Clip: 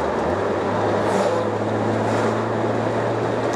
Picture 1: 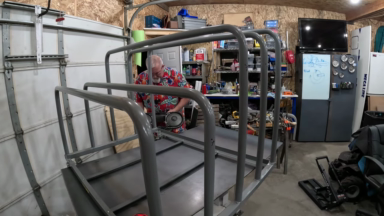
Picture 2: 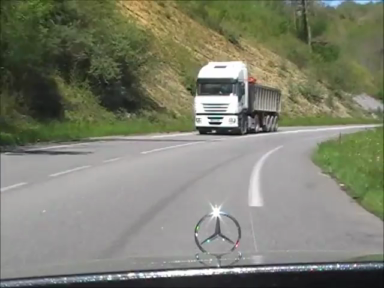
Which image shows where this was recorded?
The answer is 2